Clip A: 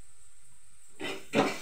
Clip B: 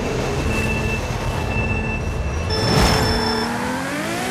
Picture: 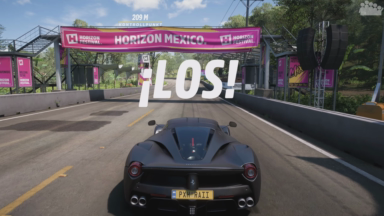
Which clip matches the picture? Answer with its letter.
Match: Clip B